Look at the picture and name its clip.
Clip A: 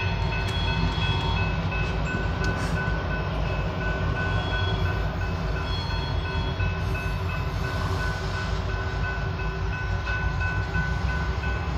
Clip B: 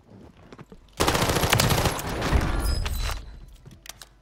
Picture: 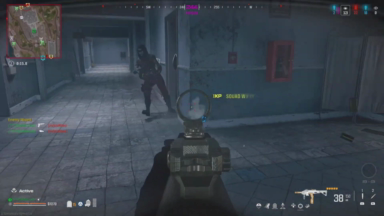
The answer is B